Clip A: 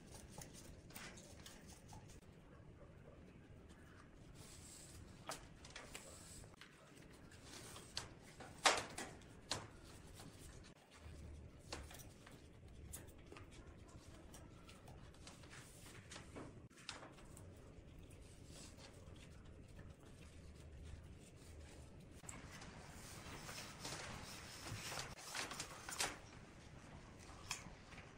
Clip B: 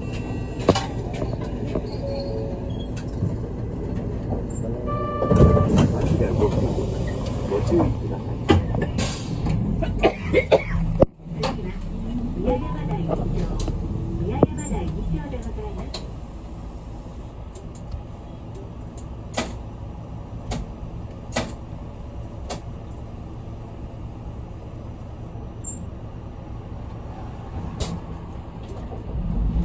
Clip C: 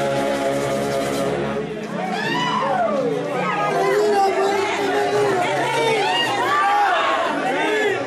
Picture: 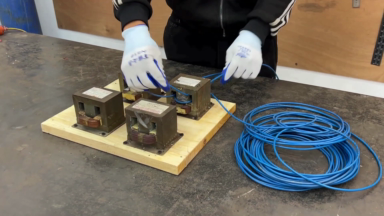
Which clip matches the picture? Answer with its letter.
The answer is A